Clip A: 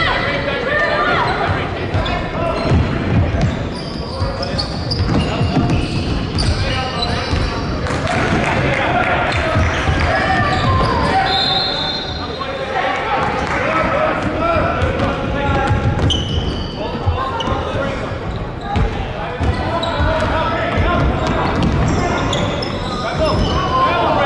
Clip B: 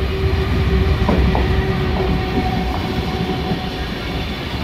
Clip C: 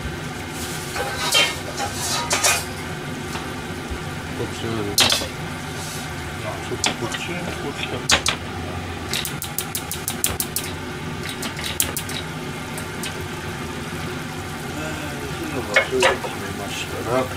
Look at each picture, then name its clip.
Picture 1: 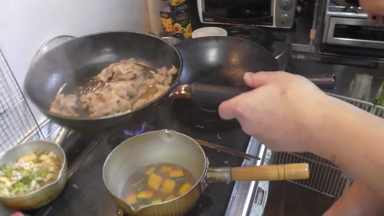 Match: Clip C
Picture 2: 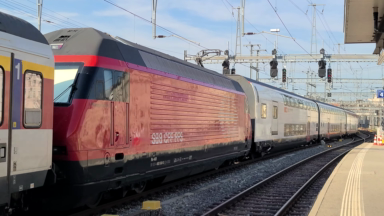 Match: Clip B